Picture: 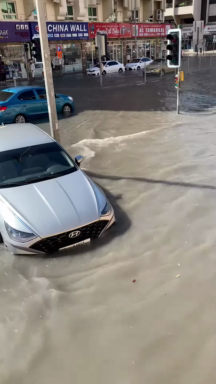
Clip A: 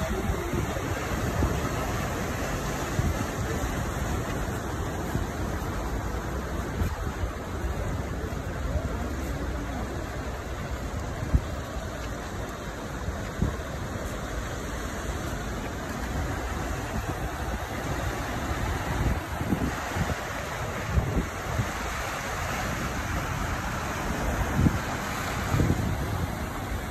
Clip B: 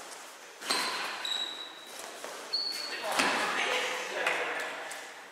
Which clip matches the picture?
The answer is A